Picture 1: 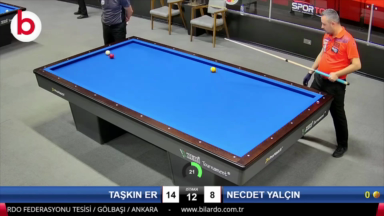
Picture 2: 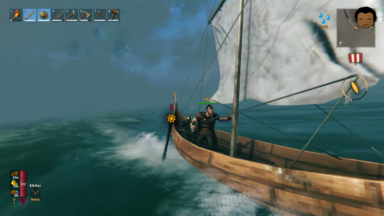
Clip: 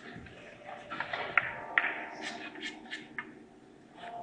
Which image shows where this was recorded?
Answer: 1